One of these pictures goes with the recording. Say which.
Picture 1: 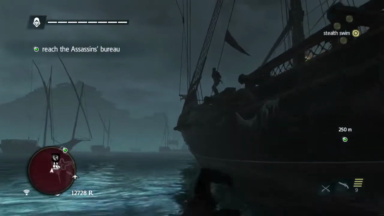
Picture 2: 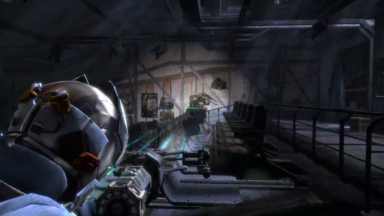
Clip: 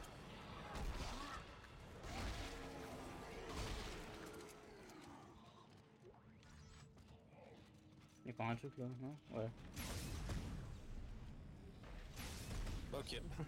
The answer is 2